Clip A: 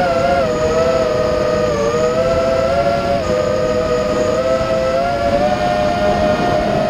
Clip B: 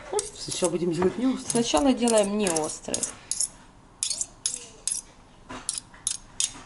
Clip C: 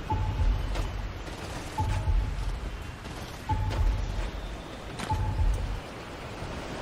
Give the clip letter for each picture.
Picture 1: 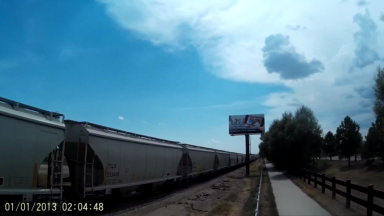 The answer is A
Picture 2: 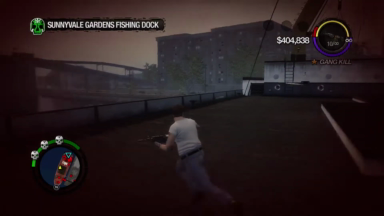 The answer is C